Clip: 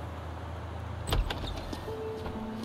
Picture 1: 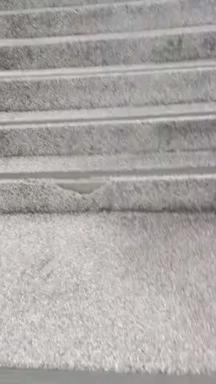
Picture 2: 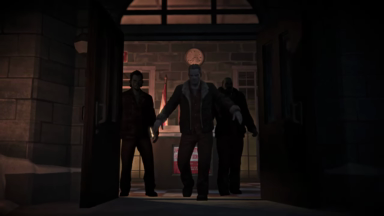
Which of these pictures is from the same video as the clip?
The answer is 2